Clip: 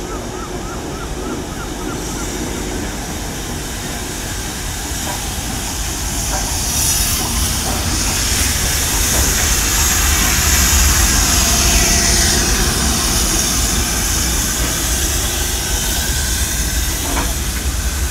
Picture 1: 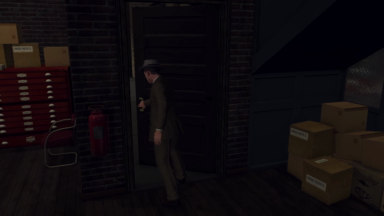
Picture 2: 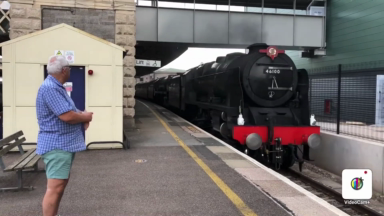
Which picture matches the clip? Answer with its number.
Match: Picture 2